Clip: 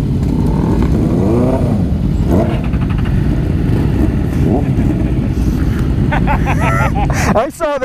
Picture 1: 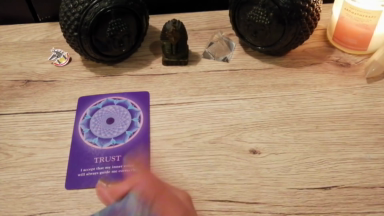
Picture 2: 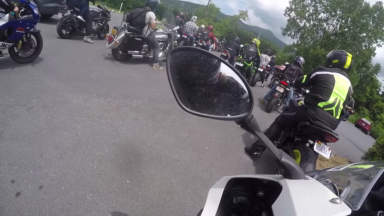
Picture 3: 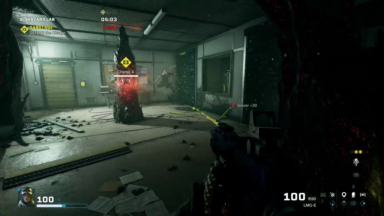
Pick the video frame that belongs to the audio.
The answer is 2